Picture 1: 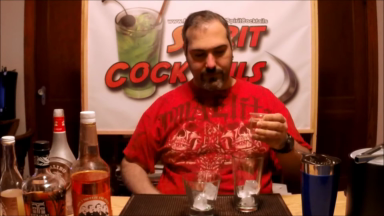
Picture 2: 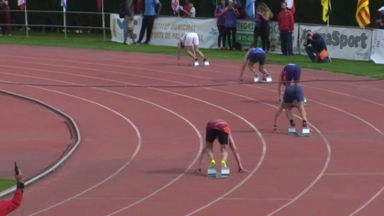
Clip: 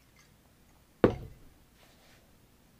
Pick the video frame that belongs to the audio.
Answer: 1